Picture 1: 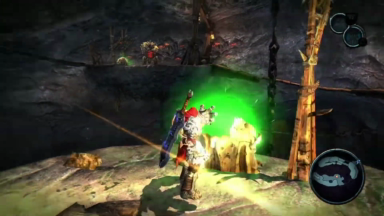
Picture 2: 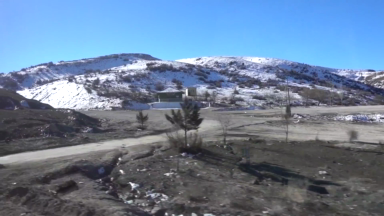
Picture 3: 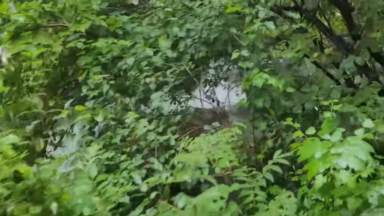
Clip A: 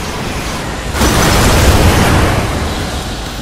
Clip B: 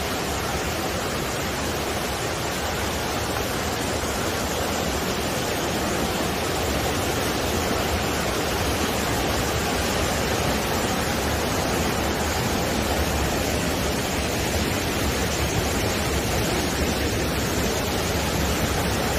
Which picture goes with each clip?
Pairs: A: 1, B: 3